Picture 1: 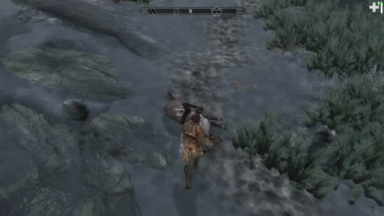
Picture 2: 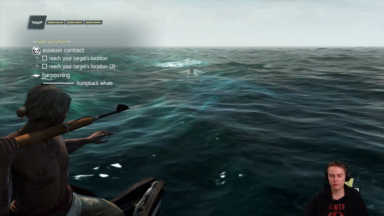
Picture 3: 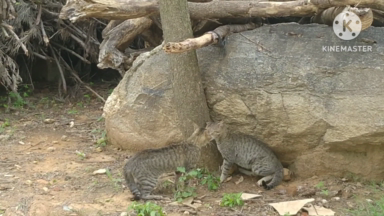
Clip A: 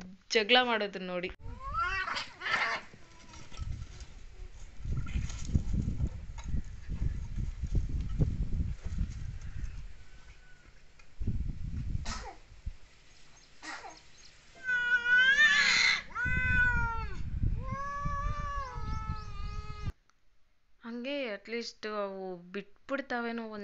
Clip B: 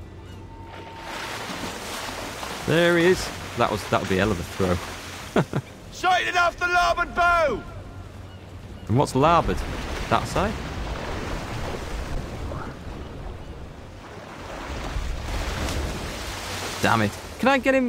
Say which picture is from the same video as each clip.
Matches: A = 3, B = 2